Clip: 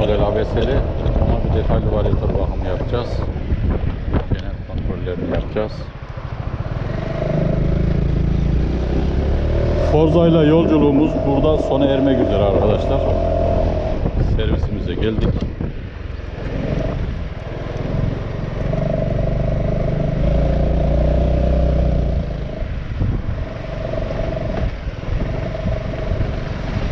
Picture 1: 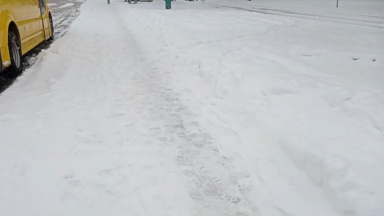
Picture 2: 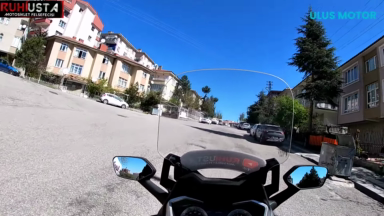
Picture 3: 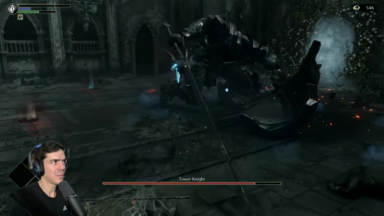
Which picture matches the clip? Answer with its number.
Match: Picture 2